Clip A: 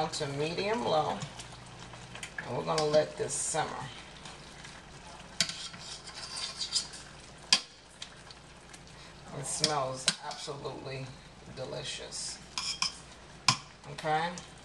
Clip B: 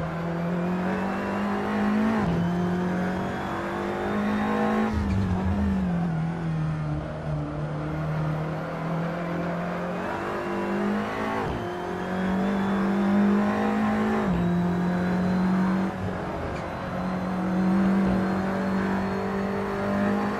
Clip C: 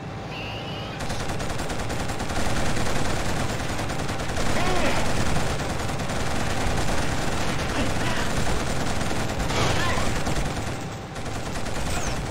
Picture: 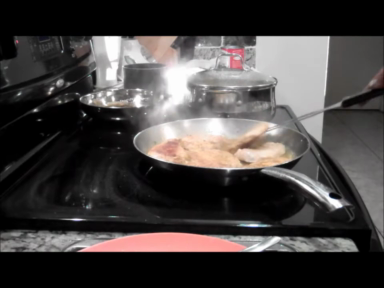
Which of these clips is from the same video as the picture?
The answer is A